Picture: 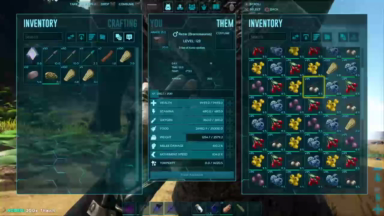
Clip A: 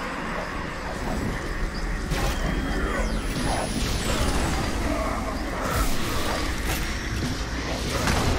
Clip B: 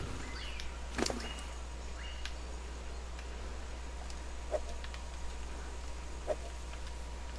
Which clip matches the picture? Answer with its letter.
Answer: B